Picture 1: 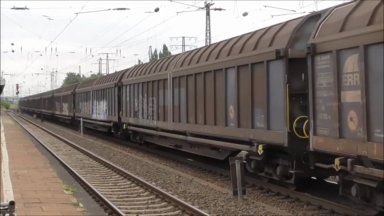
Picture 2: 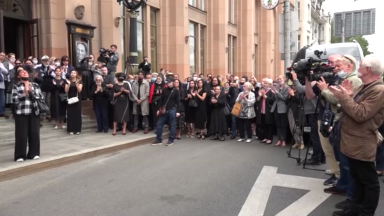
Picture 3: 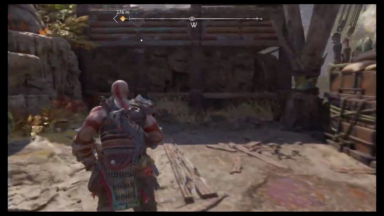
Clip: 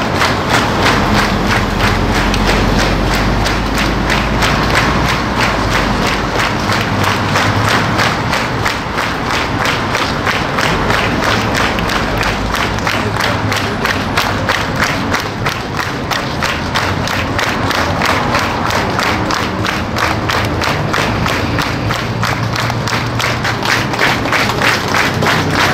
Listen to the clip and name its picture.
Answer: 2